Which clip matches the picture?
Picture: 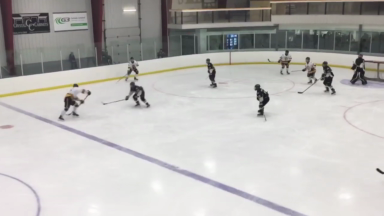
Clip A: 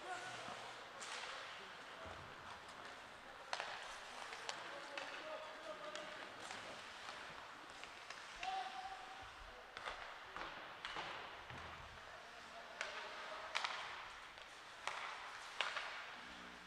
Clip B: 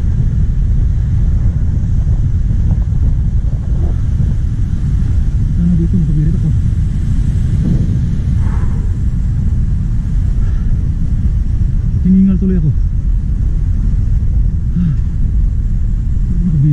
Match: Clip A